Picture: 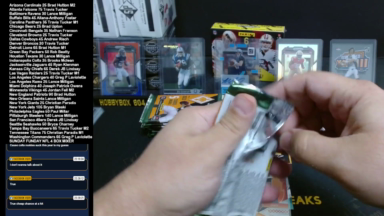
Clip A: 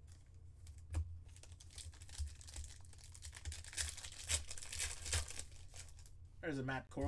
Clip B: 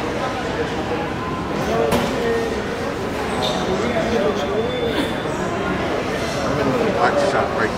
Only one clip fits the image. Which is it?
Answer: A